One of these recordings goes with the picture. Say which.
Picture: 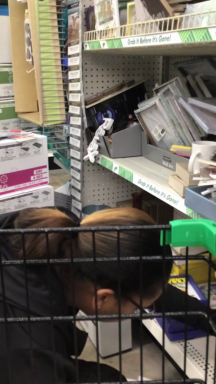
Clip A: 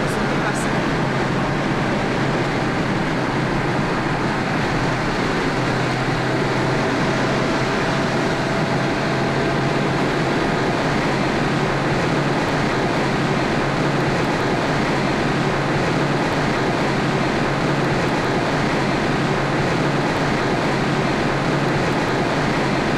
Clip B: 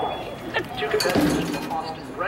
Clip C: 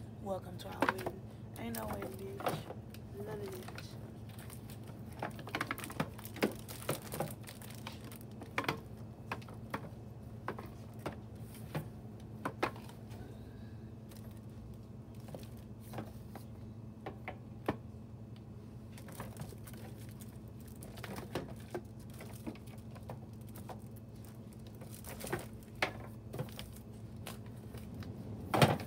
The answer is C